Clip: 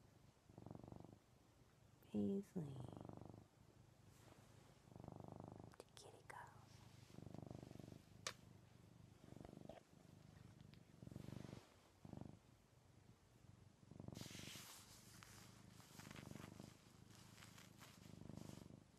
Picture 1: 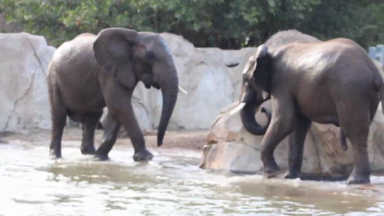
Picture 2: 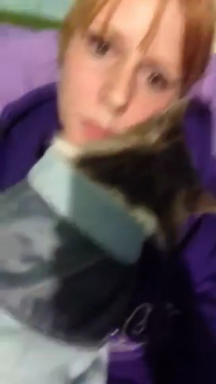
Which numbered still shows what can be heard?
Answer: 2